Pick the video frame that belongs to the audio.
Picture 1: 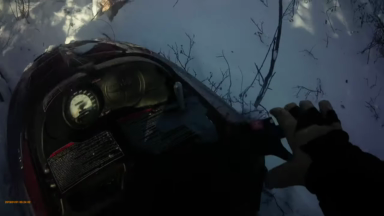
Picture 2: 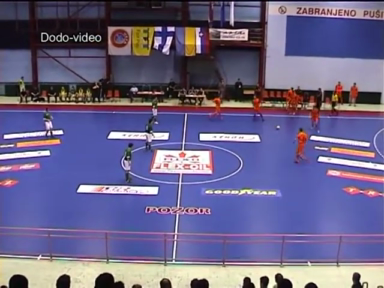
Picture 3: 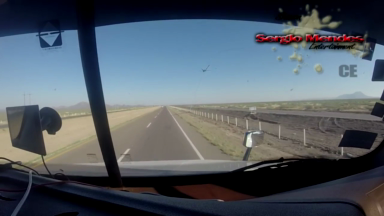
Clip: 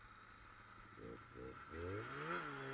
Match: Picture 1